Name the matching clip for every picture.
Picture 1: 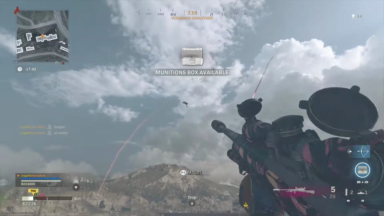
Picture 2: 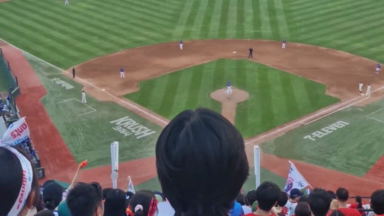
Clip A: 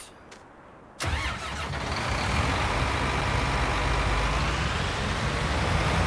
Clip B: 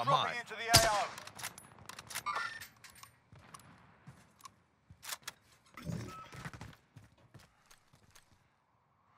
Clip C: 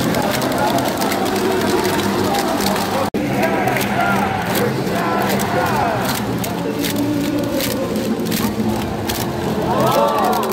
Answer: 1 B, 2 C